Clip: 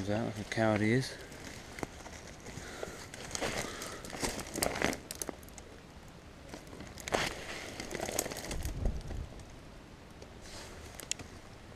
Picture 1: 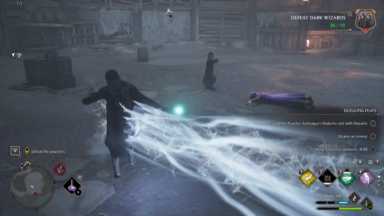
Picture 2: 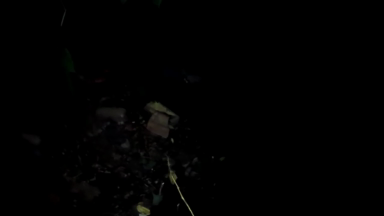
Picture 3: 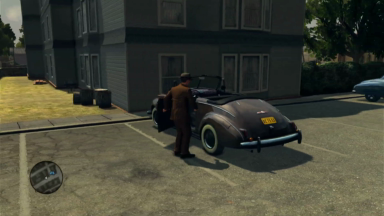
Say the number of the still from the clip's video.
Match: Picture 2